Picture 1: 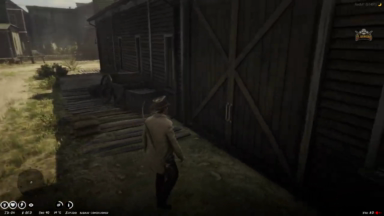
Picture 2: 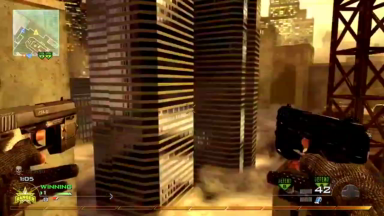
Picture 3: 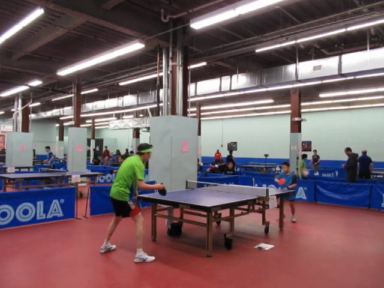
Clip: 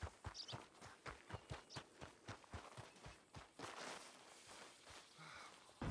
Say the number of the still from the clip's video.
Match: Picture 1